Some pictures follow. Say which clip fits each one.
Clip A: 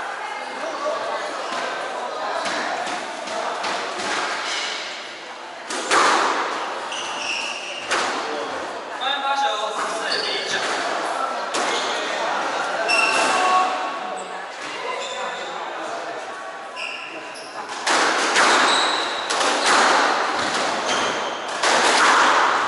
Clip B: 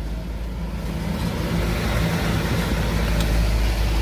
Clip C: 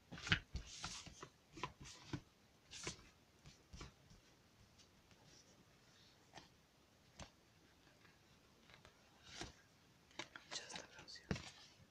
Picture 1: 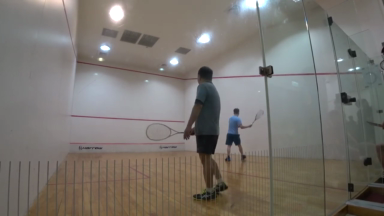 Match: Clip A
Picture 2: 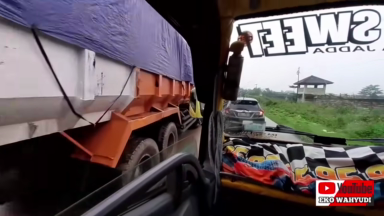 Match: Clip B